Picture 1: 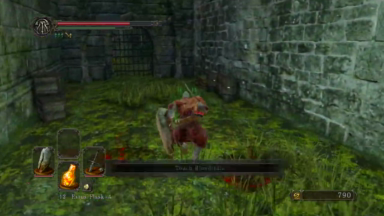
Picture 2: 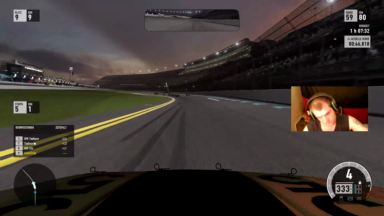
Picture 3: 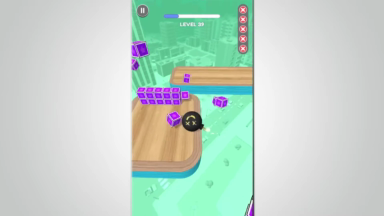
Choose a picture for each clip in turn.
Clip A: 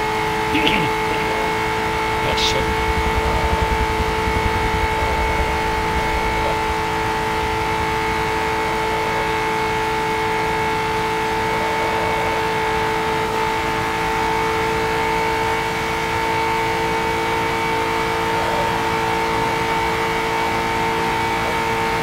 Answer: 2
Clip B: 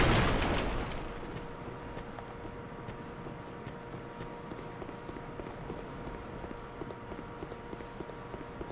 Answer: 1